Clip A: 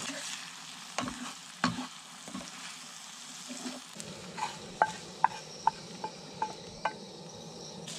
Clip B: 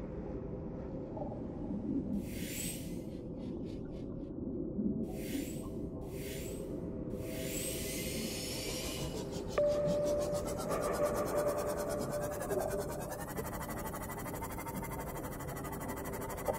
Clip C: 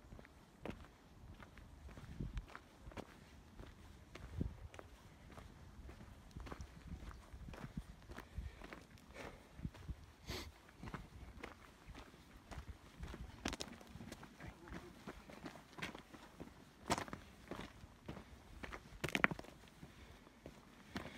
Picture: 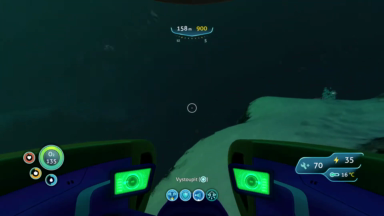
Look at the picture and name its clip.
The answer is B